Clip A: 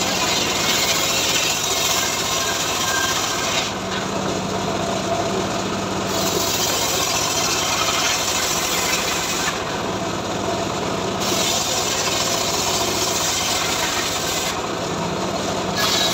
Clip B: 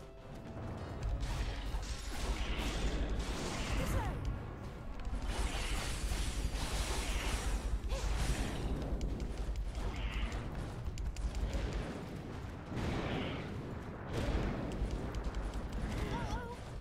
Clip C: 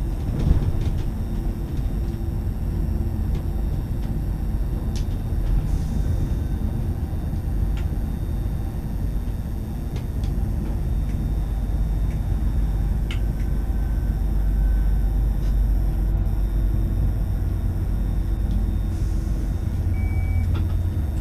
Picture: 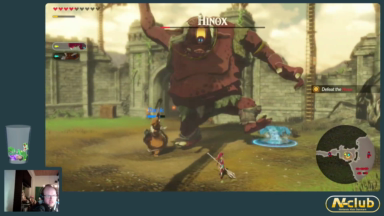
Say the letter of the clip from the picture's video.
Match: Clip B